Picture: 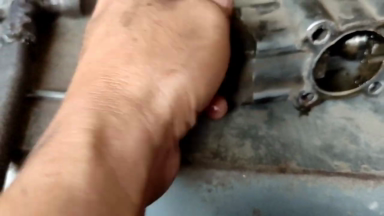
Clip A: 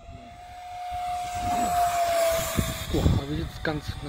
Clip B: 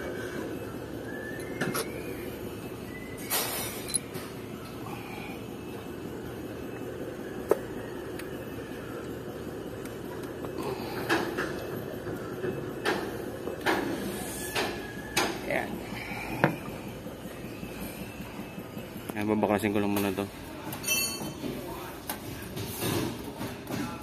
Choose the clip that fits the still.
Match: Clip B